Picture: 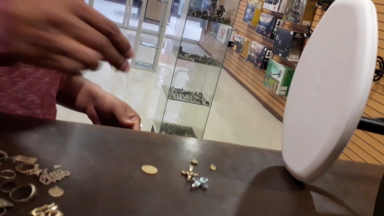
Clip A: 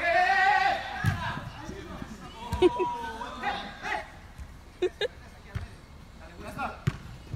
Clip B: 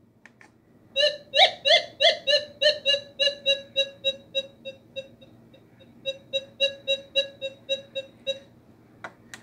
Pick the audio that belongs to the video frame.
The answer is B